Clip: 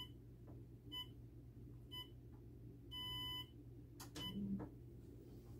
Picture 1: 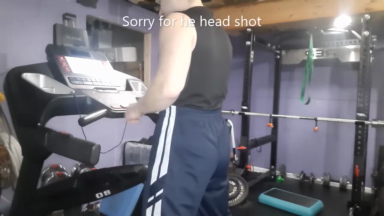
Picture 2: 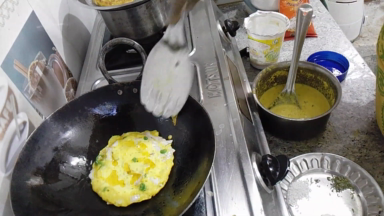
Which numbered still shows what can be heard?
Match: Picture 1